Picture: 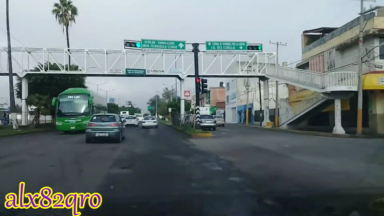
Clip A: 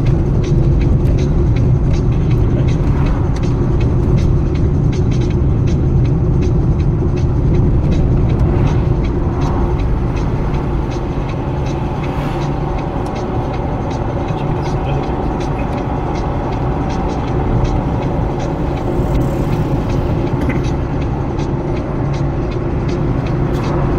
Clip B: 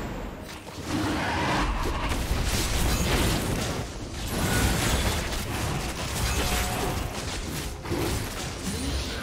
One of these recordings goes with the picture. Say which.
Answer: A